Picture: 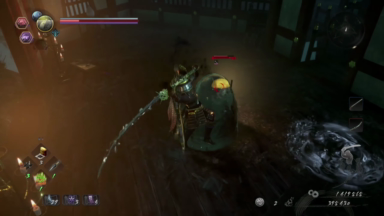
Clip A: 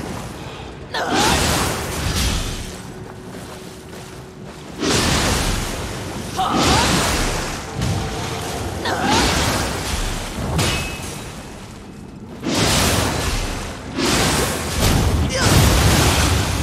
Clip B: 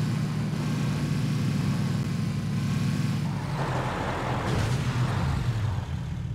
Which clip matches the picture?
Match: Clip A